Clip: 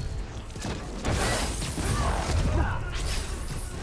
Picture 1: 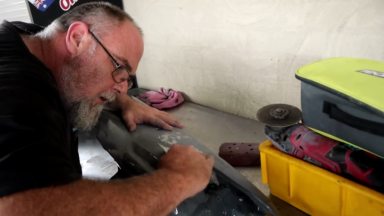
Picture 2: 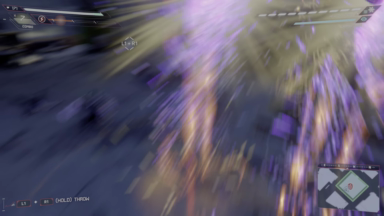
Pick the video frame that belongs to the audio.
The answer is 2